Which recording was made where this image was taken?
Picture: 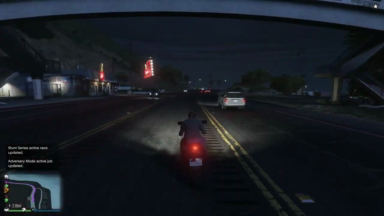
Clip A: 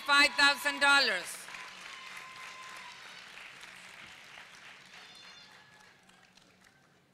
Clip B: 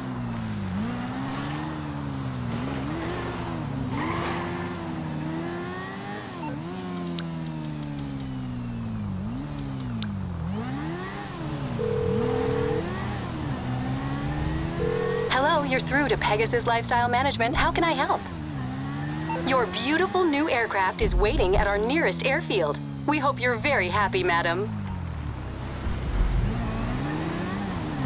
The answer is B